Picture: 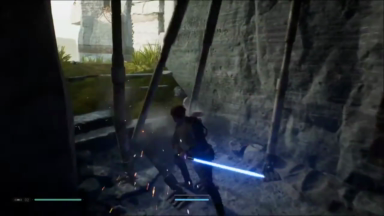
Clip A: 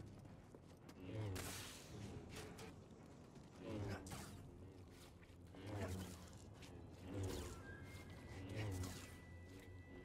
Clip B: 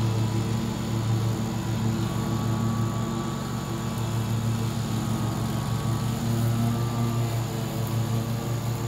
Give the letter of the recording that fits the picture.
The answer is A